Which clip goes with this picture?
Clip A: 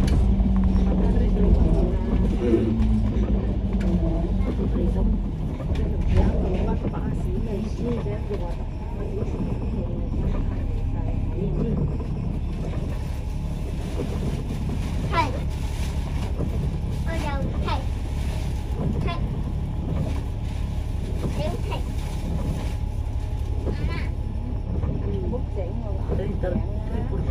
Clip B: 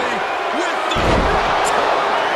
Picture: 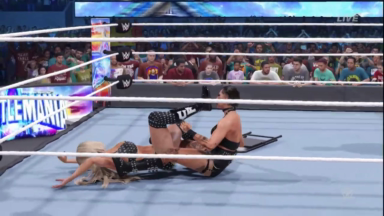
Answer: B